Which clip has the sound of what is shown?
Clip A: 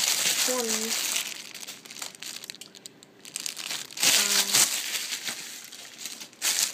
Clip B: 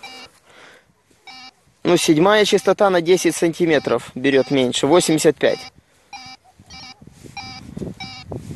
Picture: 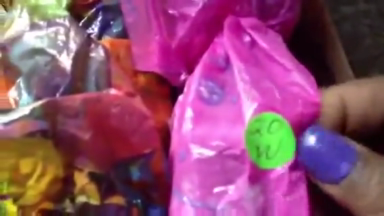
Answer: A